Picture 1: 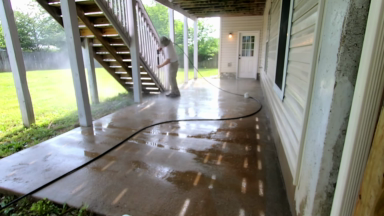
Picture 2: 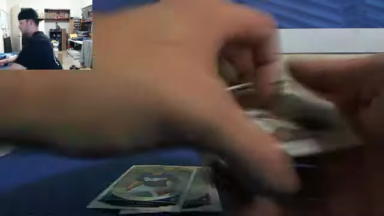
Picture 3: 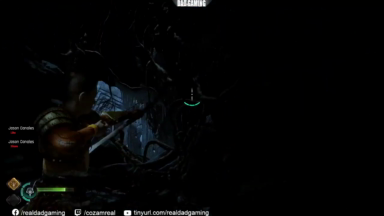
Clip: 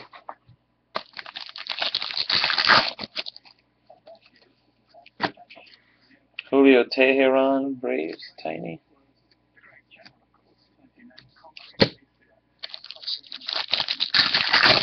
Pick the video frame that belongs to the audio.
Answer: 2